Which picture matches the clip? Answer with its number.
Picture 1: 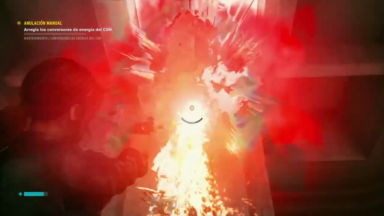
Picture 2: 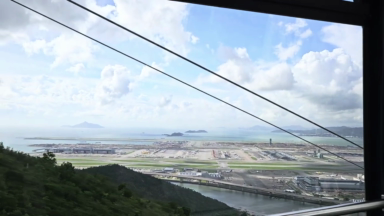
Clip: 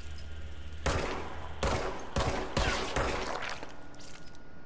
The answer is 1